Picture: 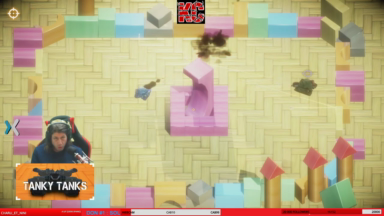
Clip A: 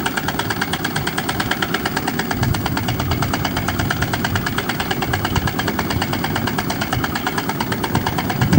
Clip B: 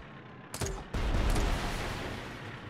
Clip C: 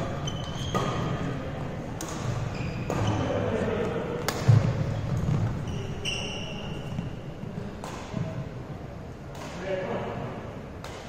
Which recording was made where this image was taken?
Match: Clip B